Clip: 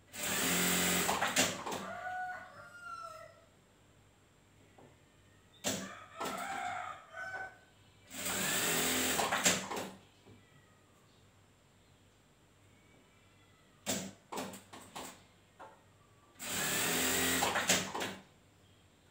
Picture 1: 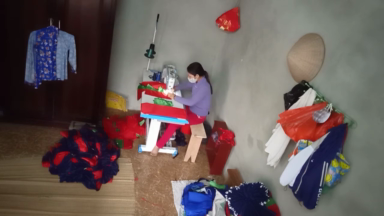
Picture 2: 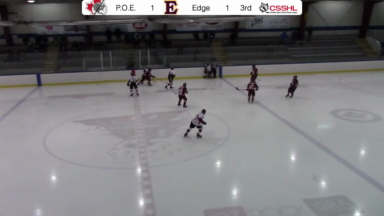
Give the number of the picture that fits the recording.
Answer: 1